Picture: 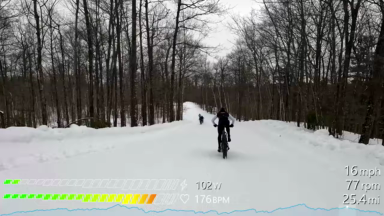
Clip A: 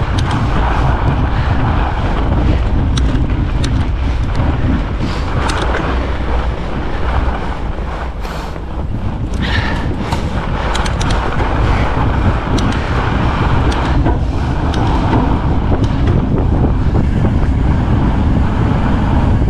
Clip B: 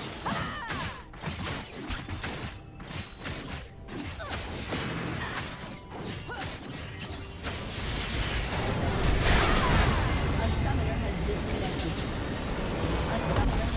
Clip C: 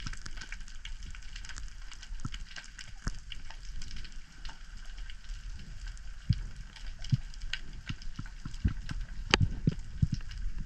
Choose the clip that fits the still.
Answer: A